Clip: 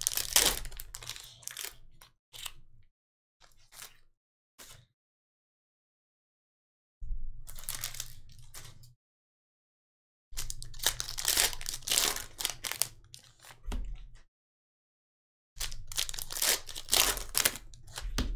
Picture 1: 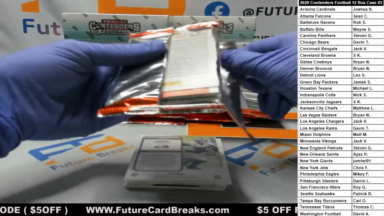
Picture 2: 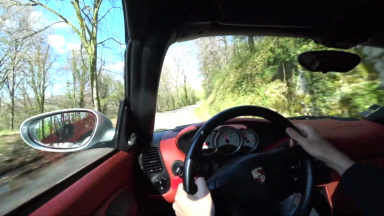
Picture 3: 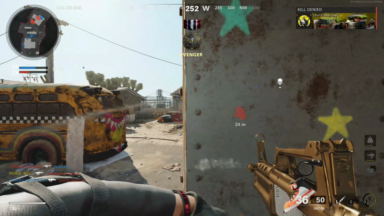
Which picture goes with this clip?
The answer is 1